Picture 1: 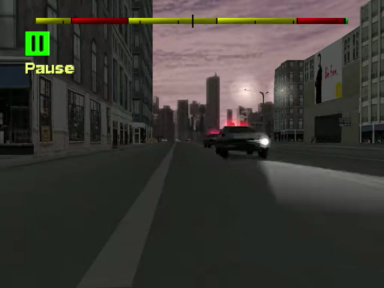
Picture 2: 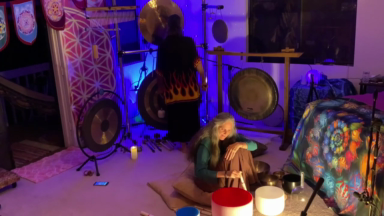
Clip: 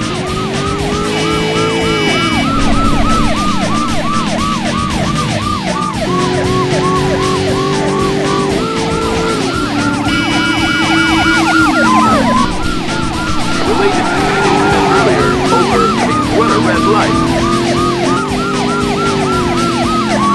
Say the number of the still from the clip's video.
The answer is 1